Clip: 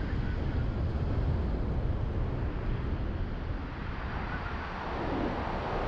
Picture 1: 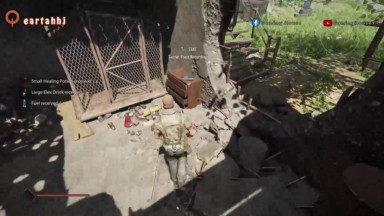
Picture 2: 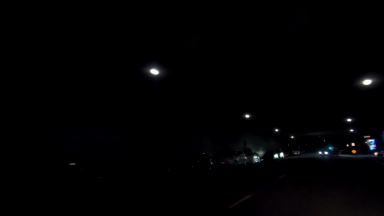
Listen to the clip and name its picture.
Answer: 2